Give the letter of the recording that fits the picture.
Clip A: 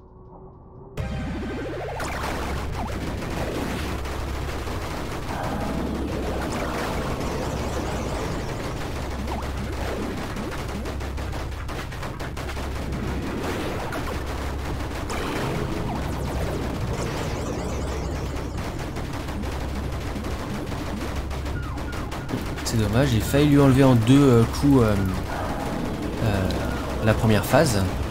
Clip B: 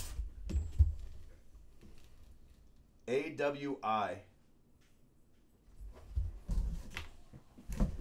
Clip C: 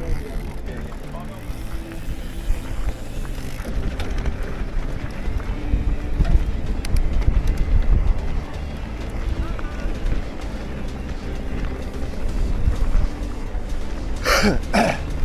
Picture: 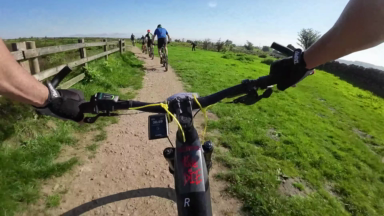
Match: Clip C